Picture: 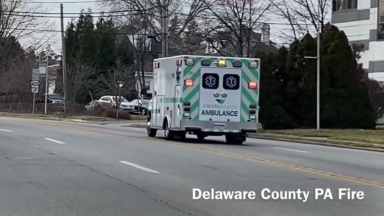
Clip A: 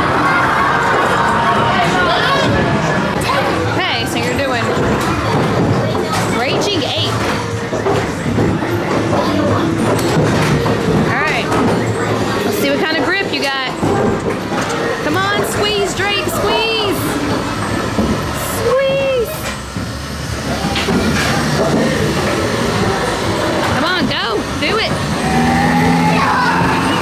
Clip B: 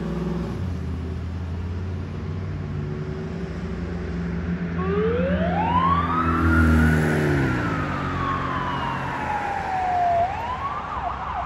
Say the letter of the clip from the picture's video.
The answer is B